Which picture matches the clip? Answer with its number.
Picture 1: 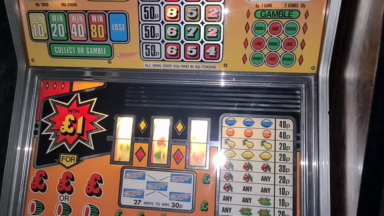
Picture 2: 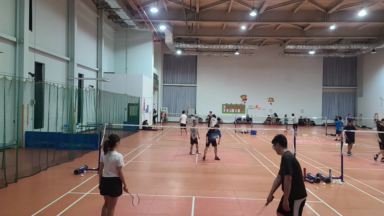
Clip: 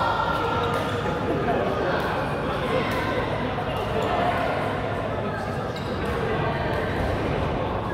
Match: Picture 2